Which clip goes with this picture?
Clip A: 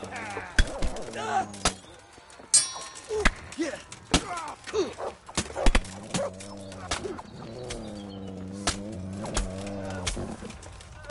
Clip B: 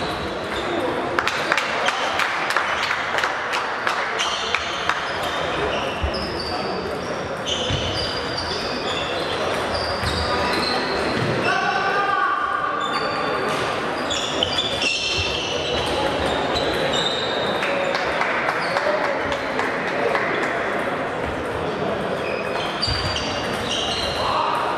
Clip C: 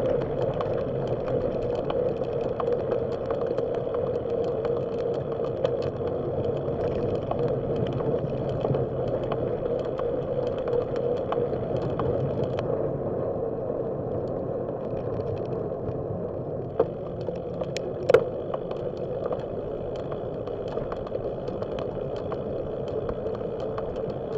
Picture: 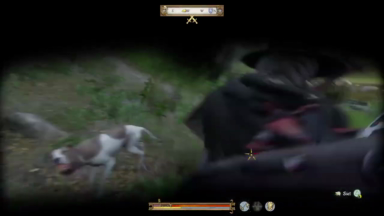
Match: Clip A